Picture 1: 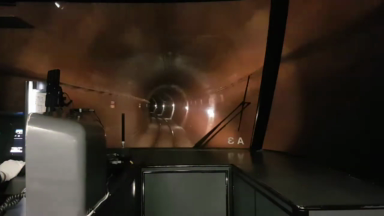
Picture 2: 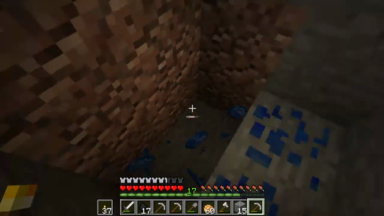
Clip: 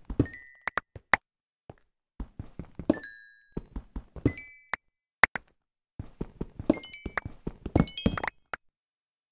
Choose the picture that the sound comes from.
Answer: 2